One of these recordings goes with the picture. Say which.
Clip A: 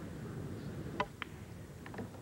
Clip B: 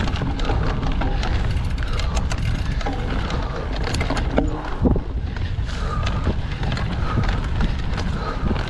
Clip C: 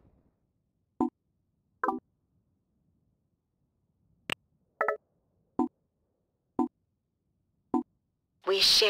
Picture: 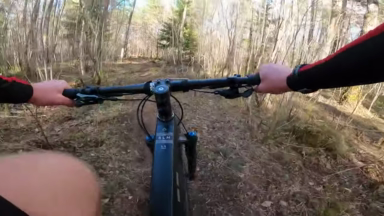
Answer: B